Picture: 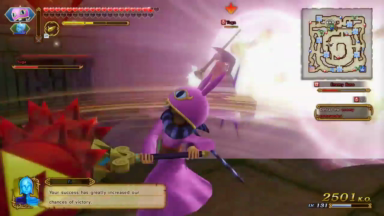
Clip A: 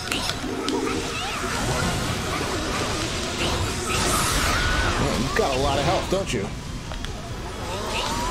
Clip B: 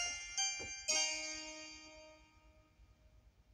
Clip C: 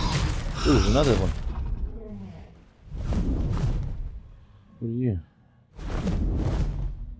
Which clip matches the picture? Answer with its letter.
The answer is A